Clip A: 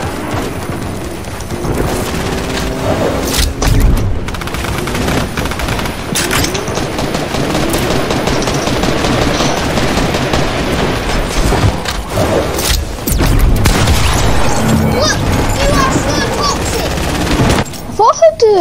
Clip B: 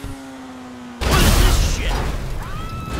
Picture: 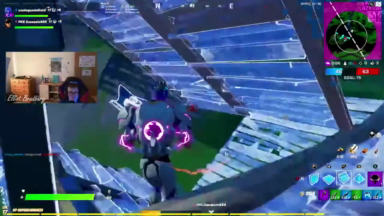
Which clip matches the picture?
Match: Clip A